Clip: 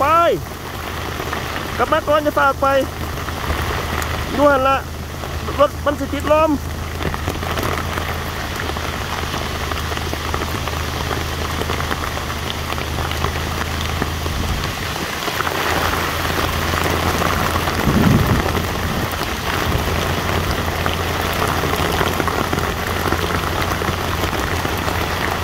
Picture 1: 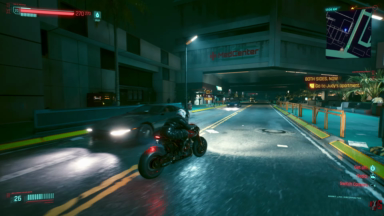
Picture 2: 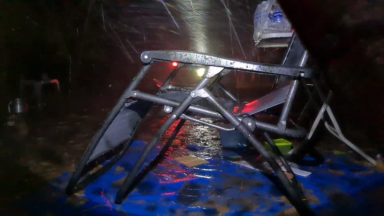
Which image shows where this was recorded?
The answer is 2